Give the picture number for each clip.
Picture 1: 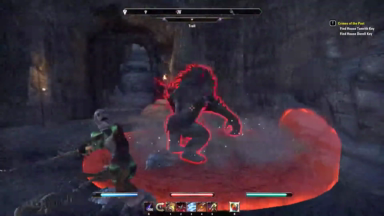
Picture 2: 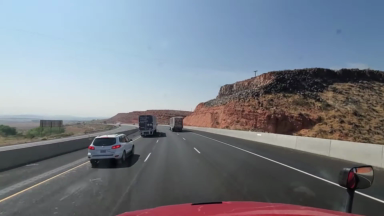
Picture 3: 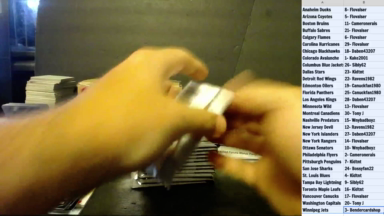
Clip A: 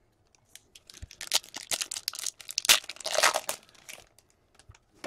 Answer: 3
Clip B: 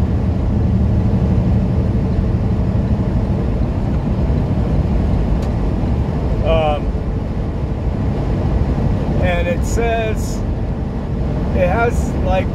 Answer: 2